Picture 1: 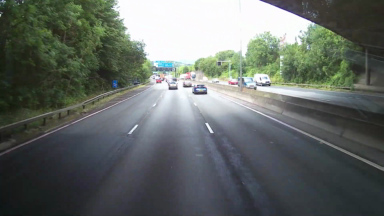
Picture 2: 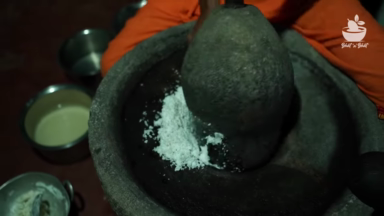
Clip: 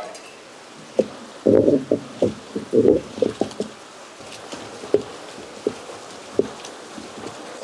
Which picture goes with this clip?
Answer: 2